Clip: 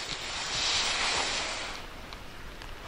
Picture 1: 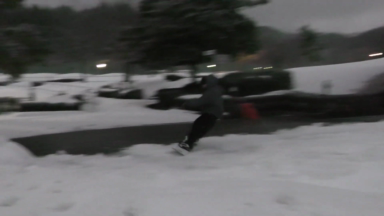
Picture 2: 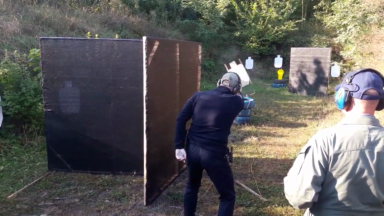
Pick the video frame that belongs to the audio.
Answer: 1